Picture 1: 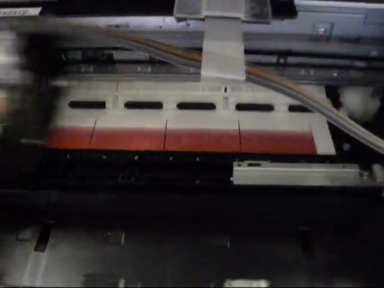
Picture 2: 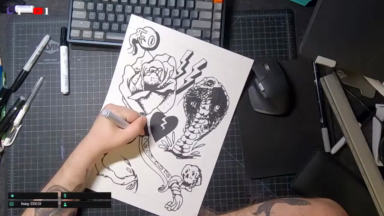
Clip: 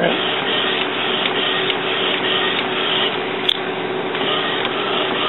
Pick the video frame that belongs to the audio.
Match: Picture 1